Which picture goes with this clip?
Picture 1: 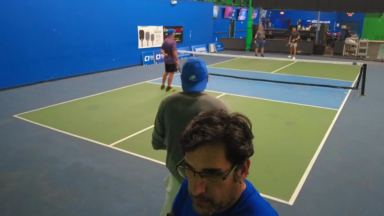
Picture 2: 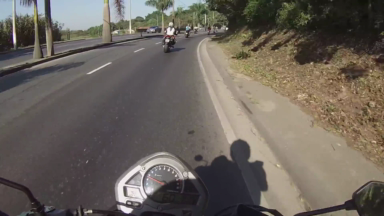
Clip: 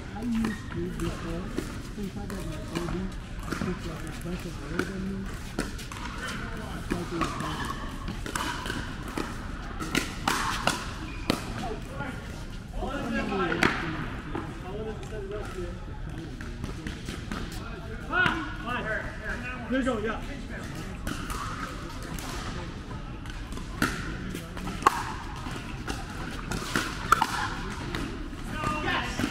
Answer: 1